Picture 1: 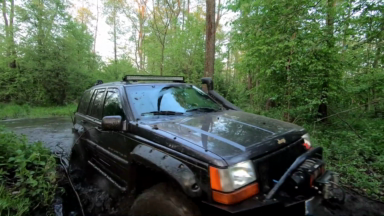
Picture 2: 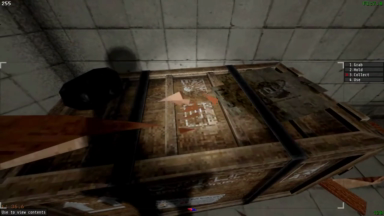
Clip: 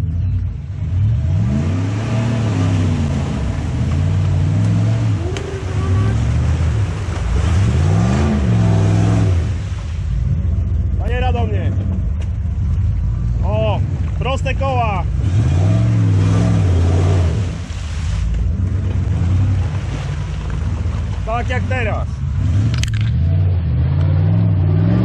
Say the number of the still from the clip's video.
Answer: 1